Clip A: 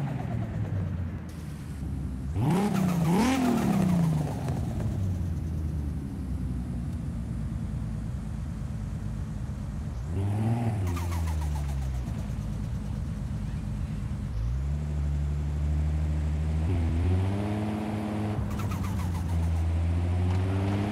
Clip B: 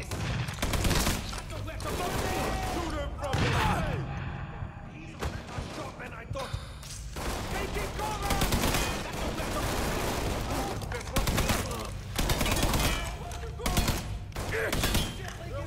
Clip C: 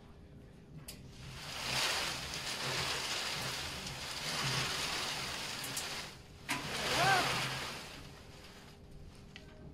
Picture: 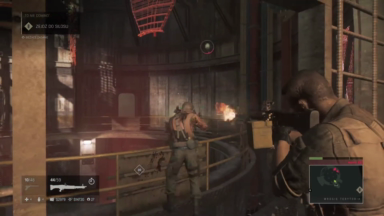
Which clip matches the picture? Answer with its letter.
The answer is B